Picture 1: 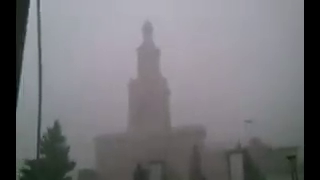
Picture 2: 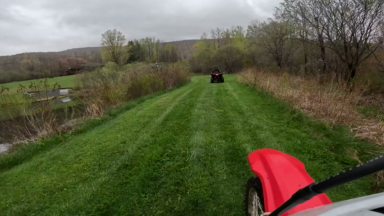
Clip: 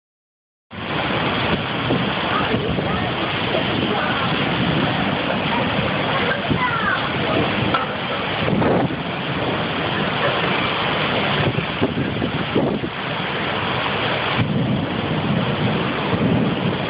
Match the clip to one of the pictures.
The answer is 1